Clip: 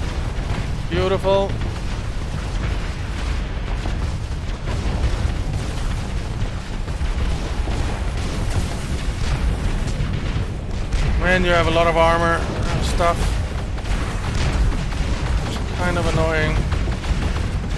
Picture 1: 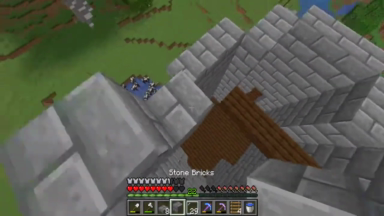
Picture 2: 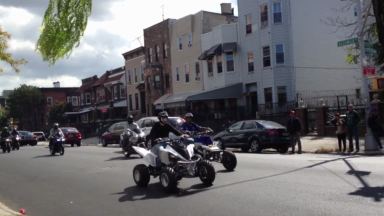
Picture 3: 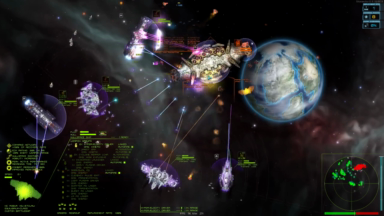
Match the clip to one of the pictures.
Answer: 3